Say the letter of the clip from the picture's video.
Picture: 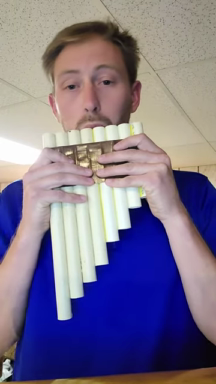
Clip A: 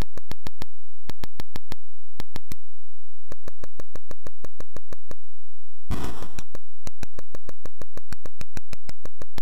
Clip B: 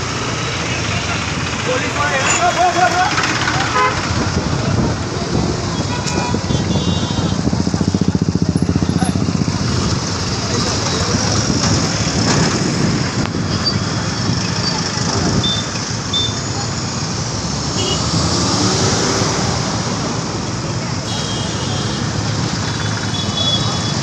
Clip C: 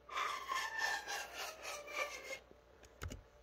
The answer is C